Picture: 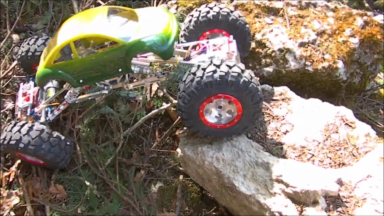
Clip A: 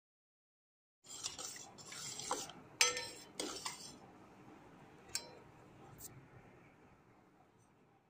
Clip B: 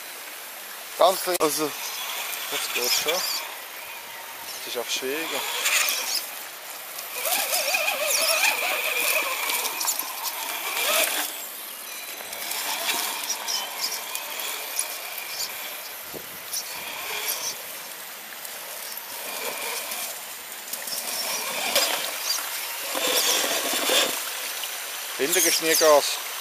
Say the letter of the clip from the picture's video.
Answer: B